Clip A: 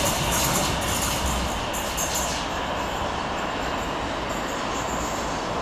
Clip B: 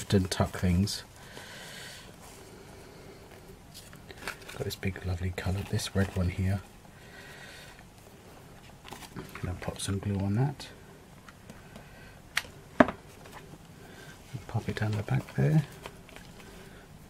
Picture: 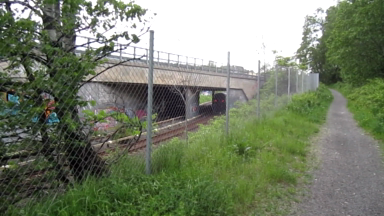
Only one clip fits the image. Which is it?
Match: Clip A